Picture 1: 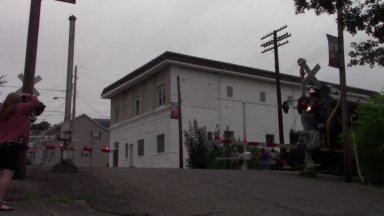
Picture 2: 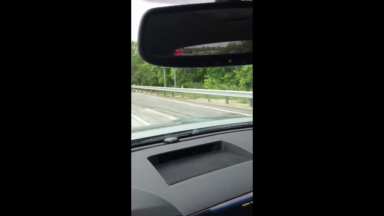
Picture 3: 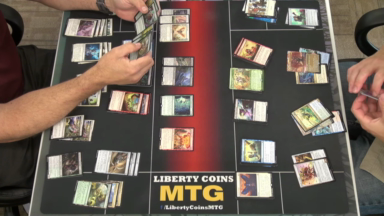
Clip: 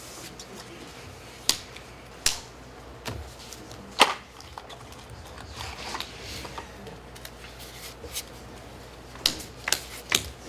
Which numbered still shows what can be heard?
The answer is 3